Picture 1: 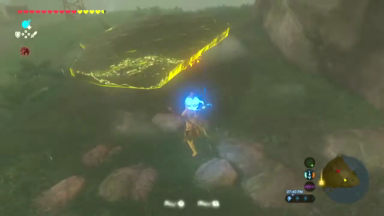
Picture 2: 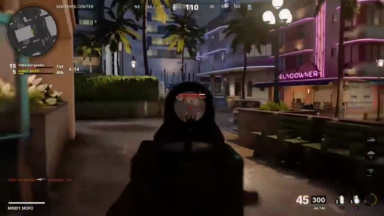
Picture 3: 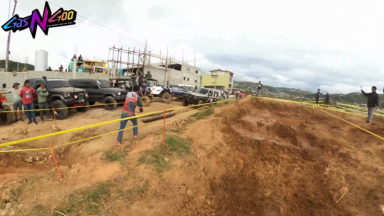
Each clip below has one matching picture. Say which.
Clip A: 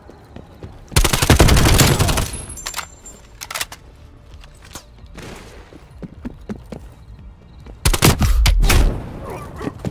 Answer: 2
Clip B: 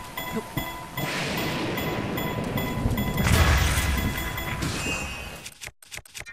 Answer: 1